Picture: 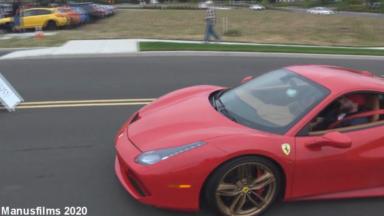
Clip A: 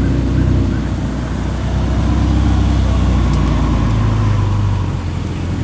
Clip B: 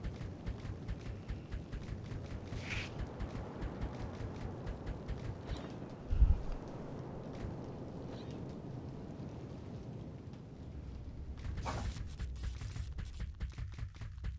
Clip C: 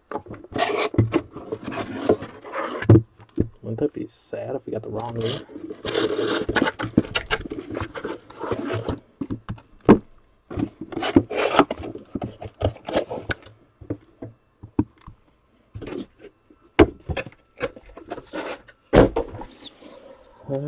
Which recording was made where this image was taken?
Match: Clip A